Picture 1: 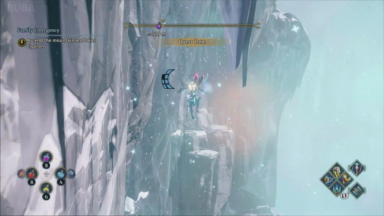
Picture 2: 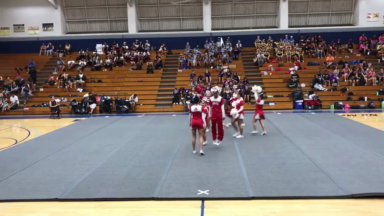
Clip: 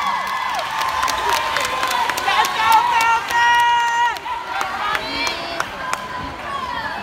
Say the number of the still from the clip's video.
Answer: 2